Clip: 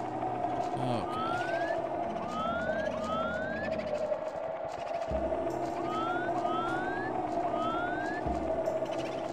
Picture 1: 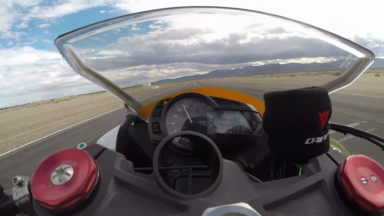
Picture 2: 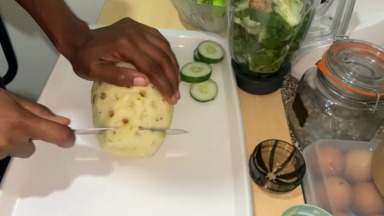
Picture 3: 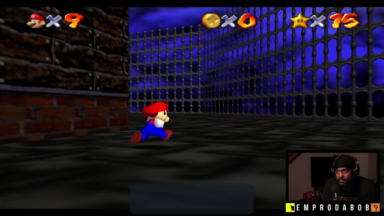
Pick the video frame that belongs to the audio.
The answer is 3